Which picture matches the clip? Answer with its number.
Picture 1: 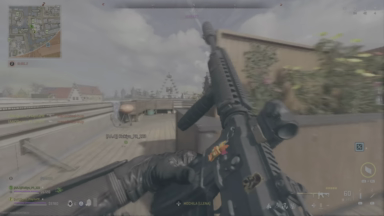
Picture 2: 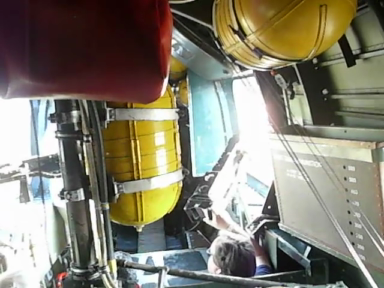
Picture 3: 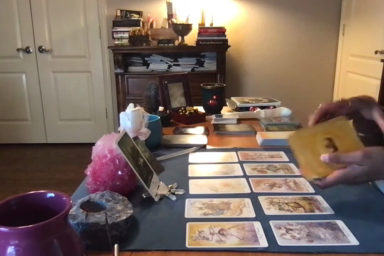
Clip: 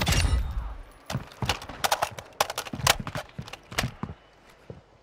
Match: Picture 1